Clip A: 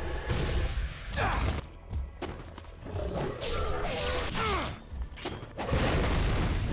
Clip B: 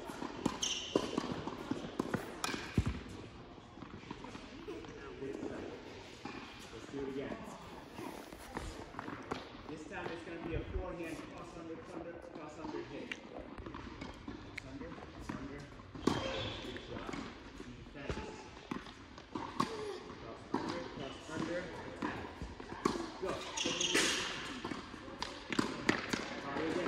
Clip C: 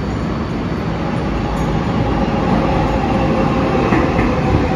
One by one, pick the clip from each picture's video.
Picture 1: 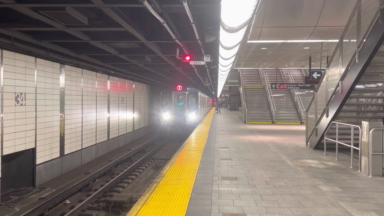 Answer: C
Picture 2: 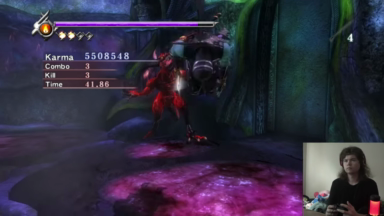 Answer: A